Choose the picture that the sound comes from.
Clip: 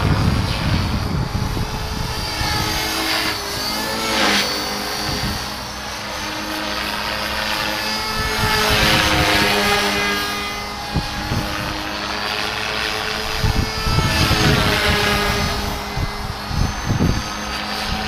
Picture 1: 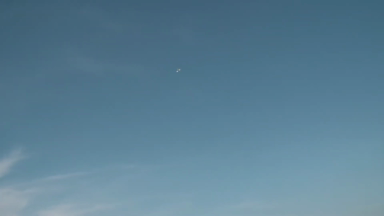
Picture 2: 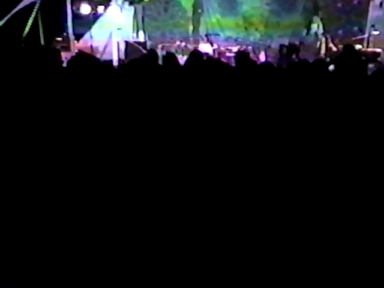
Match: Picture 1